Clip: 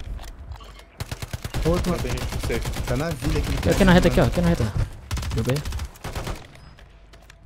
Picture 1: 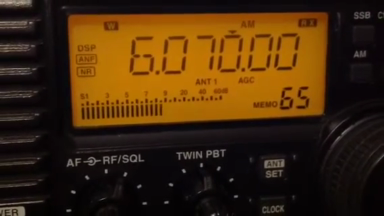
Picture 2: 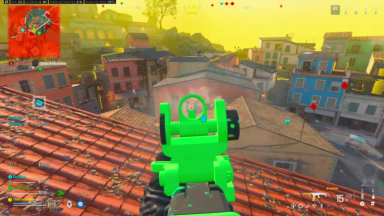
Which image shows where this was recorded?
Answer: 2